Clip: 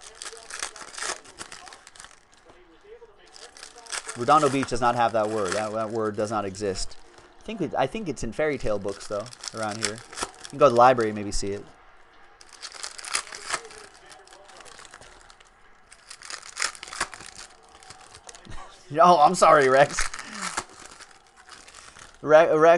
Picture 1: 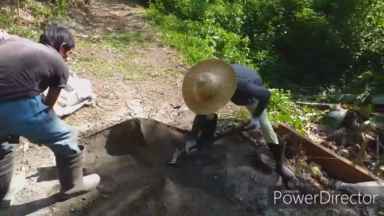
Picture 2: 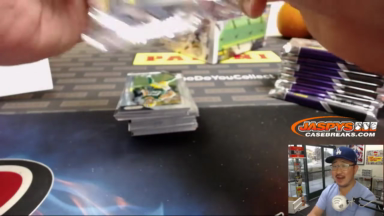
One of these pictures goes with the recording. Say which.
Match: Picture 2